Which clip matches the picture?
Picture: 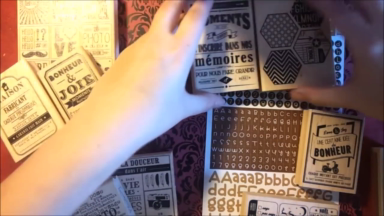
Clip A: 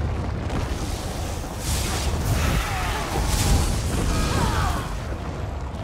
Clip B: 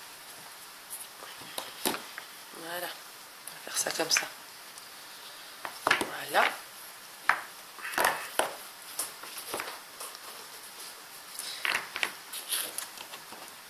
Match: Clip B